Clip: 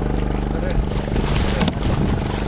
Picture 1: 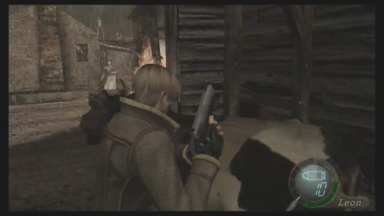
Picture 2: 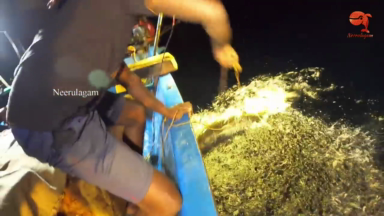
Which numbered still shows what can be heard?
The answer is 2